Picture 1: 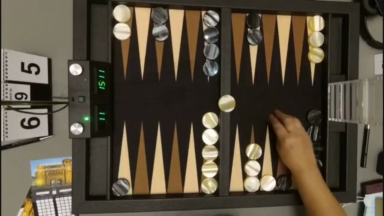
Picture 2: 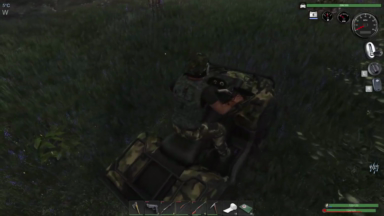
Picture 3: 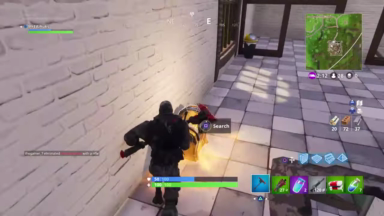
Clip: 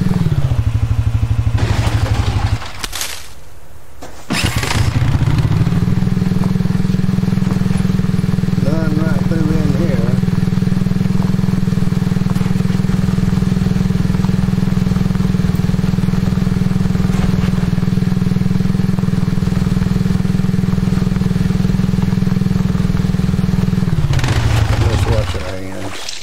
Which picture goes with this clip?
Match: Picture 2